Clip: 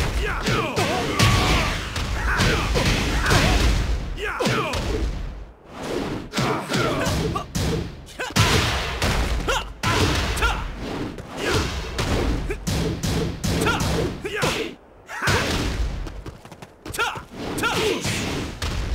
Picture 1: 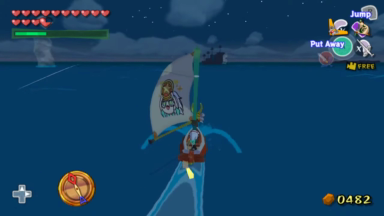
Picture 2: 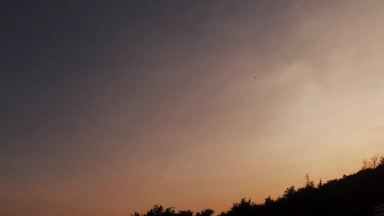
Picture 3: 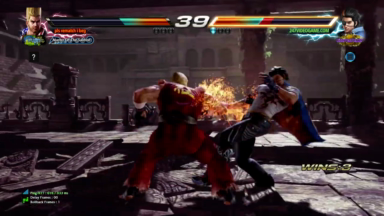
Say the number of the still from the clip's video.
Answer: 3